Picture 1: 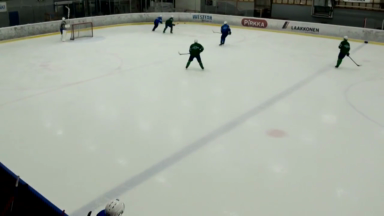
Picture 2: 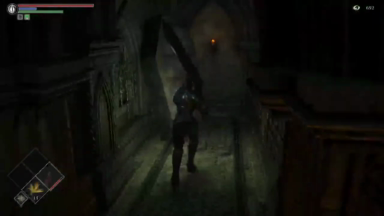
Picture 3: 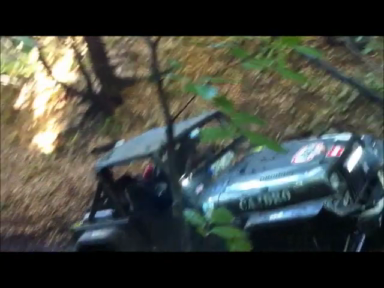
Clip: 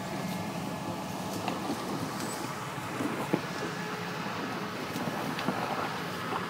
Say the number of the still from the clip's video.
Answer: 3